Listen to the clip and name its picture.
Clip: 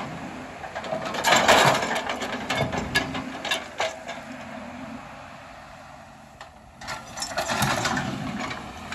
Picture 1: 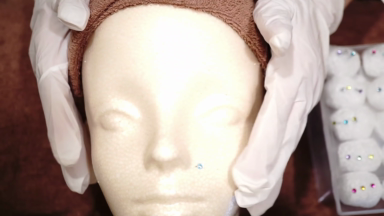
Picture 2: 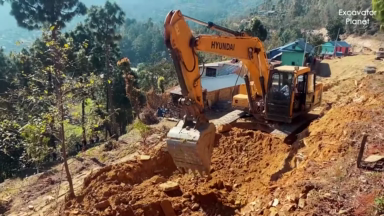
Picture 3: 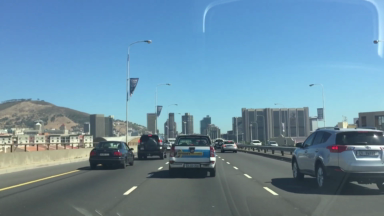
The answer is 2